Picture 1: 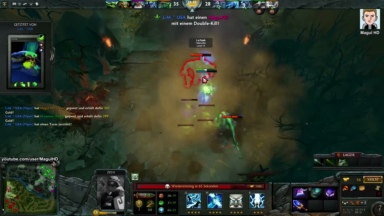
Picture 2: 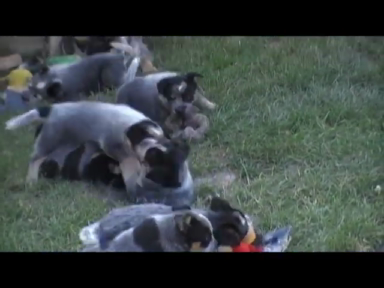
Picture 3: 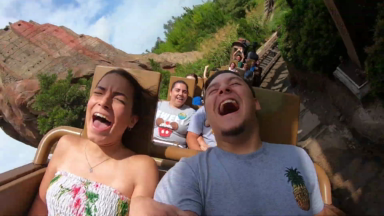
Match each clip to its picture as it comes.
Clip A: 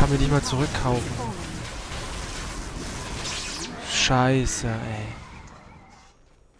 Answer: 1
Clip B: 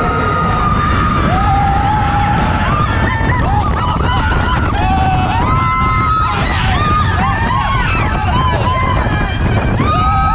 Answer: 3